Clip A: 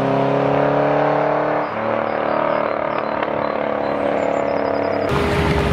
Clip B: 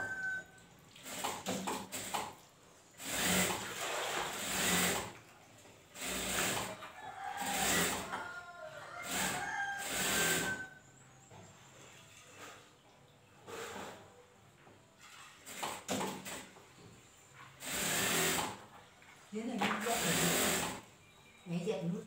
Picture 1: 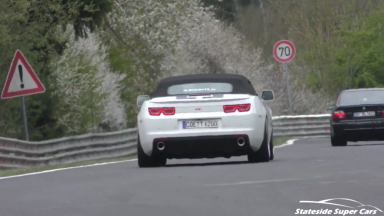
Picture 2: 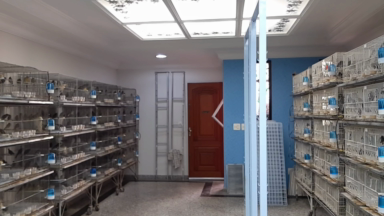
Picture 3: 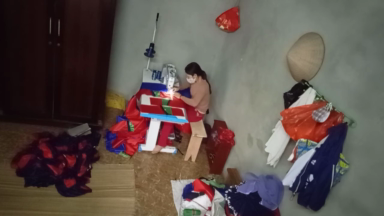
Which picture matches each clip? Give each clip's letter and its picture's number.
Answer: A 1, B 3